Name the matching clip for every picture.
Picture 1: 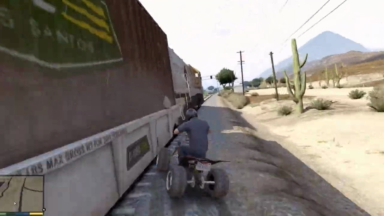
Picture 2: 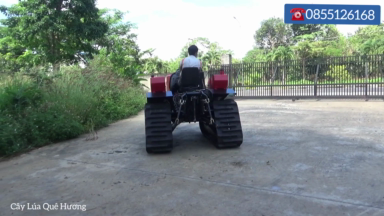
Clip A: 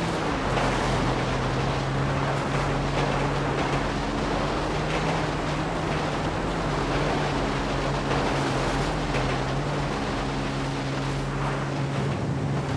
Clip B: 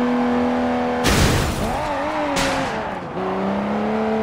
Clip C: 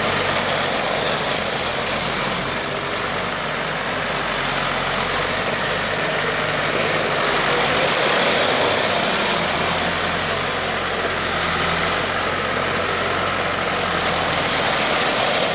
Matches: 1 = A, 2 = C